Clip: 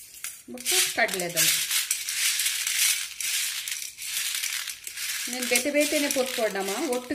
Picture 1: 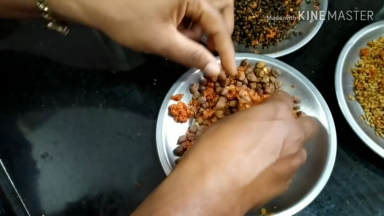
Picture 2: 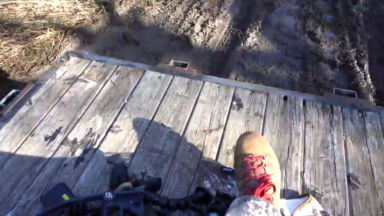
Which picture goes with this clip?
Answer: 1